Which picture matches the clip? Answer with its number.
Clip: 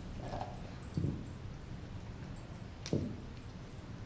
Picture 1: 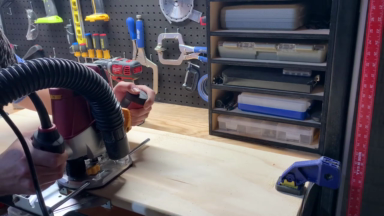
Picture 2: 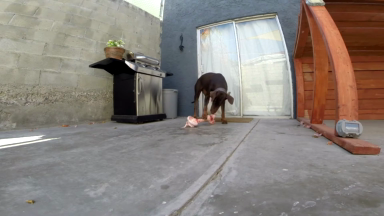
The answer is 2